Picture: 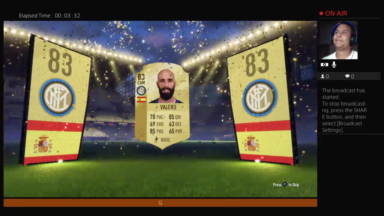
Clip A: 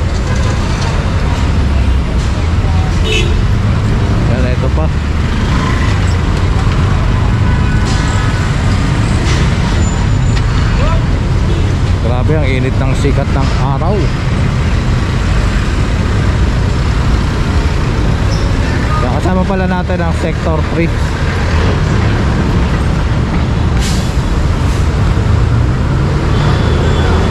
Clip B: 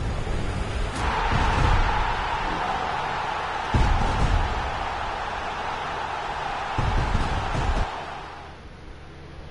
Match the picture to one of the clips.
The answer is B